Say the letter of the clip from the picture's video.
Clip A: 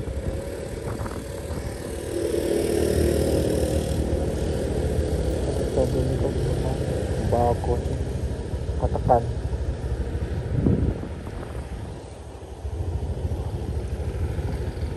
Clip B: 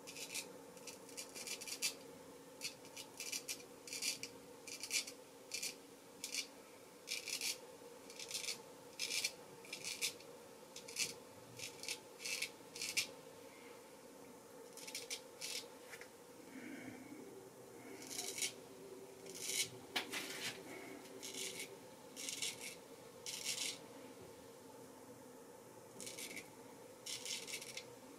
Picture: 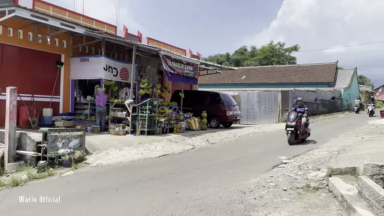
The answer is A